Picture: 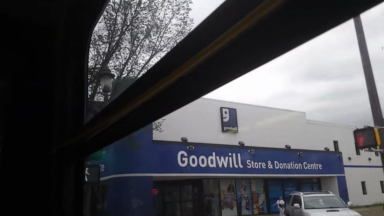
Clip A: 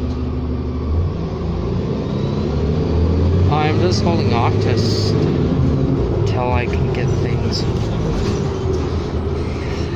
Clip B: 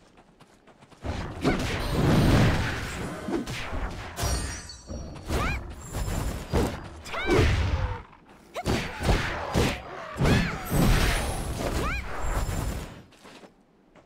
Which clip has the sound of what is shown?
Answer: A